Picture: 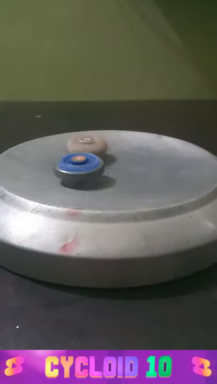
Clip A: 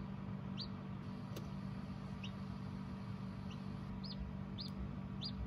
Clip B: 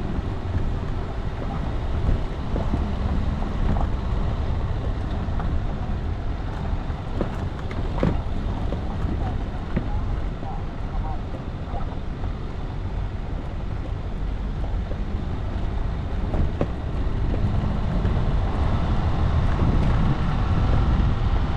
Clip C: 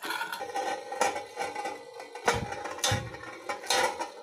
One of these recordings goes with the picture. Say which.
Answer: C